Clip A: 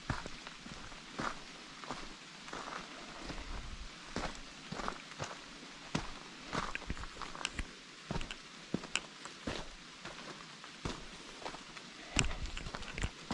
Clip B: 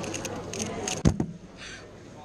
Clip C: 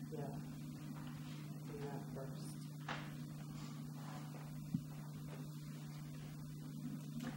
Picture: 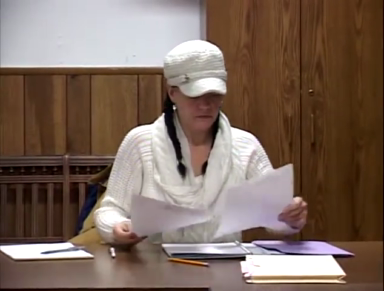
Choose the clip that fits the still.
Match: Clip C